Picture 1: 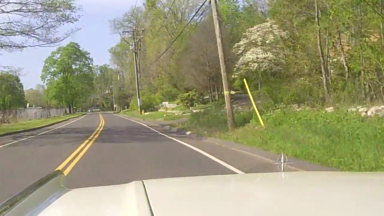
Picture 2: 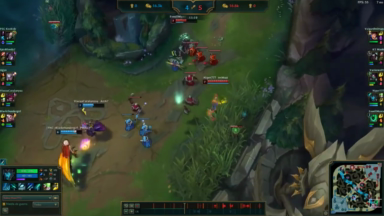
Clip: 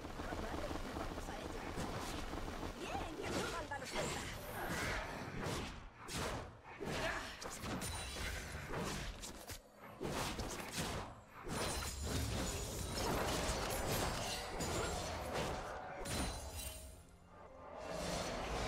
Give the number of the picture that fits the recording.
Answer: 2